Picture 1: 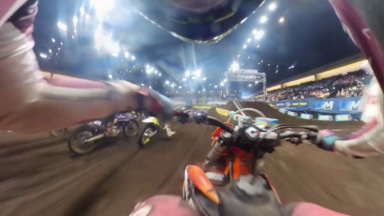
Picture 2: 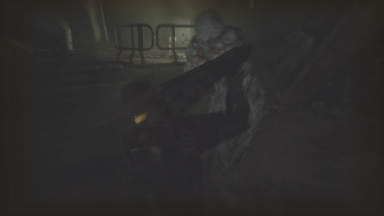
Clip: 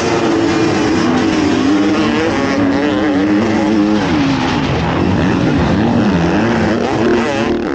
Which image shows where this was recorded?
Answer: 1